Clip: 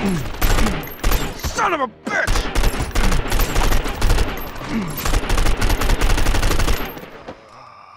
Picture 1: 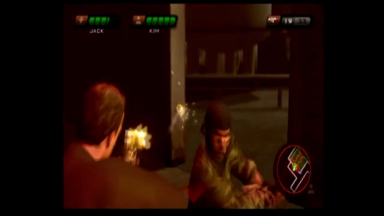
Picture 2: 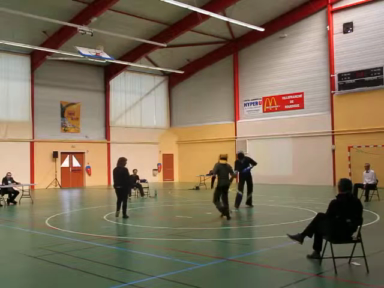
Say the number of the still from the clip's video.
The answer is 1